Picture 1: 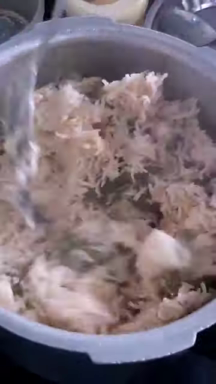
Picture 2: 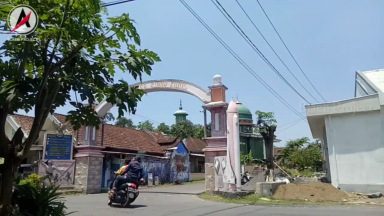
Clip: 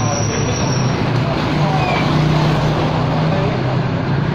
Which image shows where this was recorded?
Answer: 2